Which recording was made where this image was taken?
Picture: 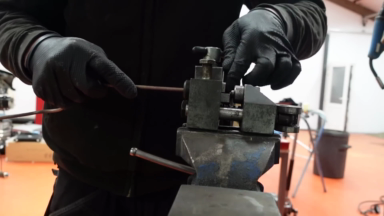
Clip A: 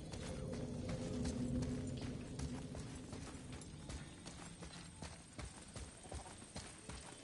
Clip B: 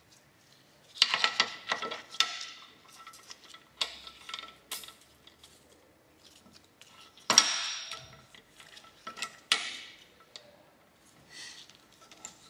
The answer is B